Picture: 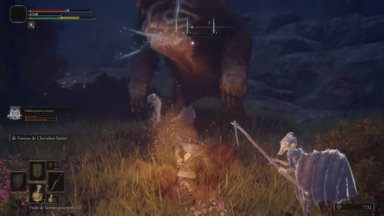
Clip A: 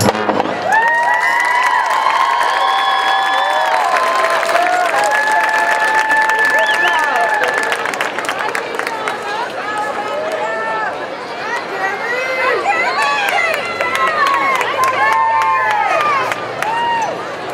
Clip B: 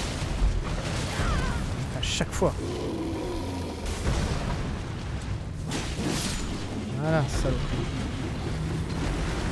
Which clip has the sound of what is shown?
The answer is B